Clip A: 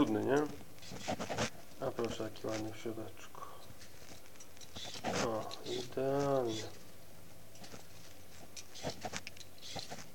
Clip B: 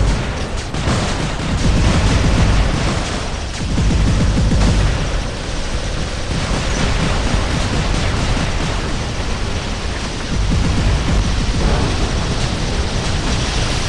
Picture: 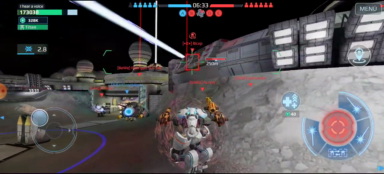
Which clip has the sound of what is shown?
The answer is B